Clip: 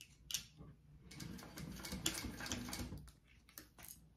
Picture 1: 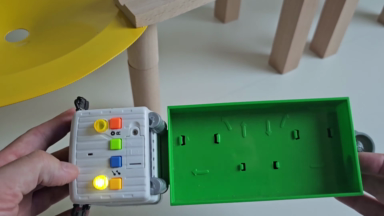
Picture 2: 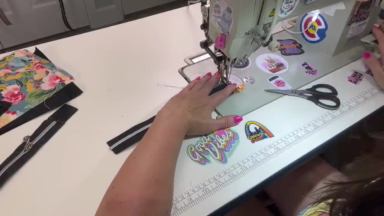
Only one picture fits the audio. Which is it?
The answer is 2